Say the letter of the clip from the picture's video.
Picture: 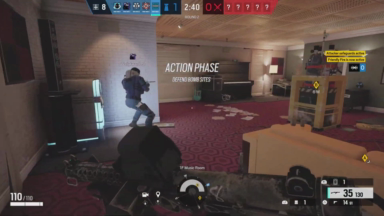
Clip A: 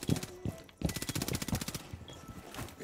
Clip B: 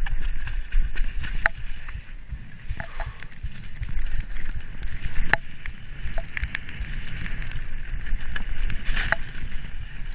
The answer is A